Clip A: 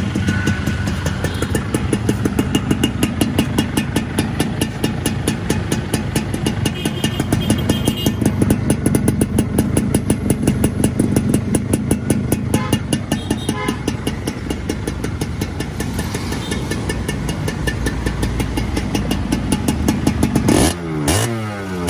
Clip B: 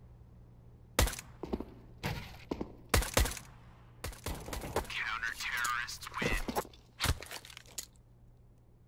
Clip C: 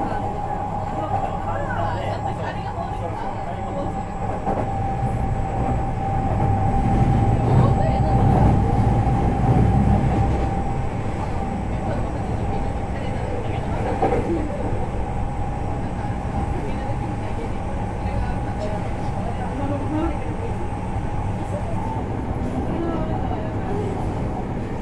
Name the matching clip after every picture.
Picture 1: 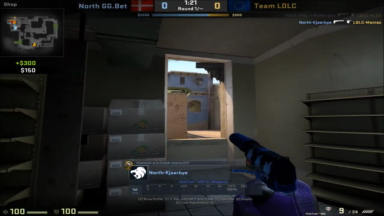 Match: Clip B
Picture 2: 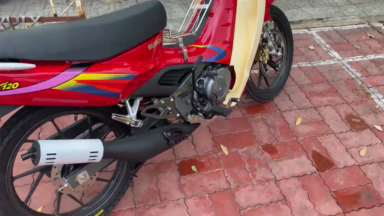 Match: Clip A